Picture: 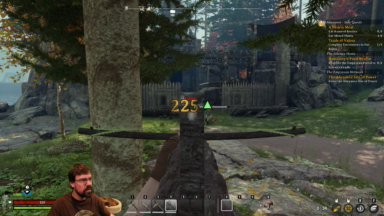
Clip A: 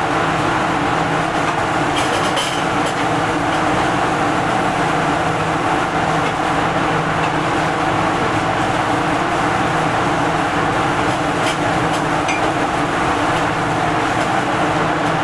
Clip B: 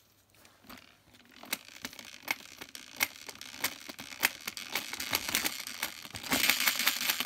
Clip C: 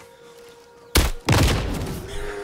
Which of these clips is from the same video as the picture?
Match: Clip C